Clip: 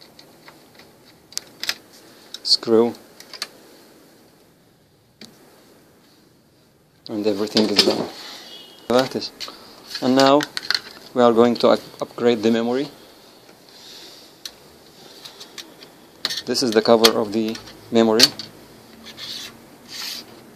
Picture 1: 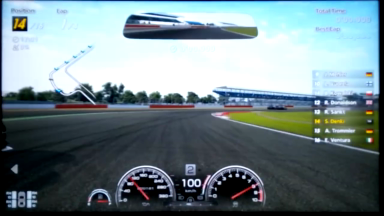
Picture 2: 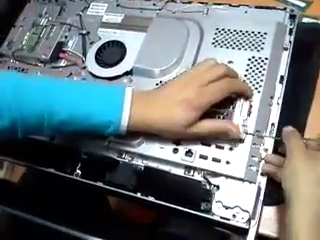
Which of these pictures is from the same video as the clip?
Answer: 2